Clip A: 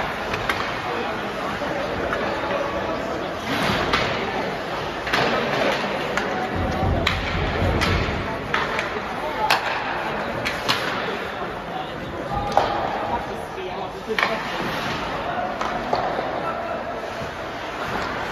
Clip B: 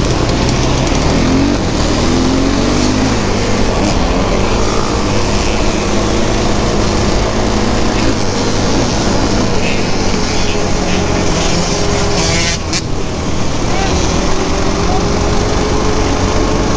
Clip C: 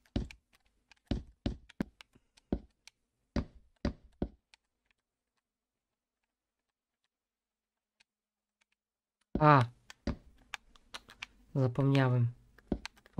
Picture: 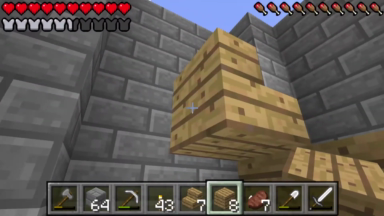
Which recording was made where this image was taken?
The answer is C